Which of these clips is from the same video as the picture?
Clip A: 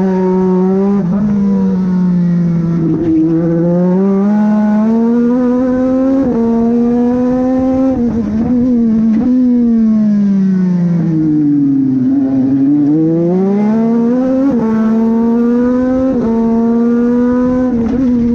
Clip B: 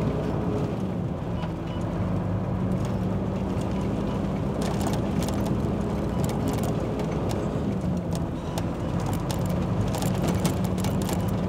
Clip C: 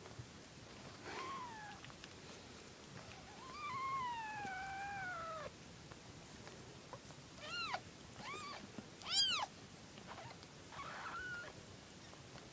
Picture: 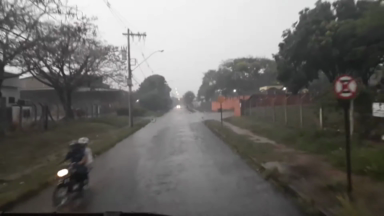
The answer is B